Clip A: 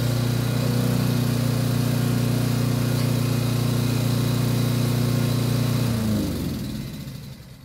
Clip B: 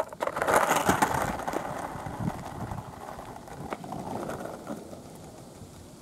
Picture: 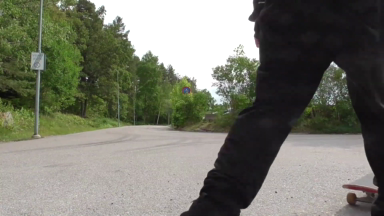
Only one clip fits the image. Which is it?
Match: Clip B